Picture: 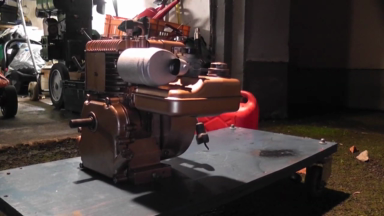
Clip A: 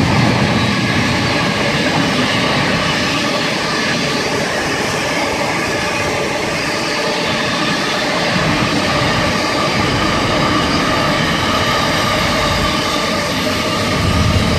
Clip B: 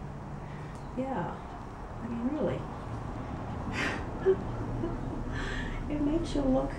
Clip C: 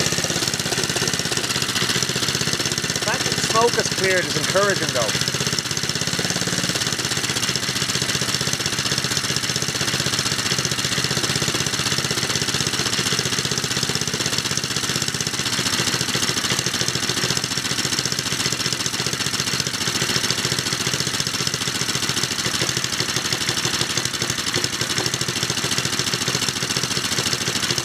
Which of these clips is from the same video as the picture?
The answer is C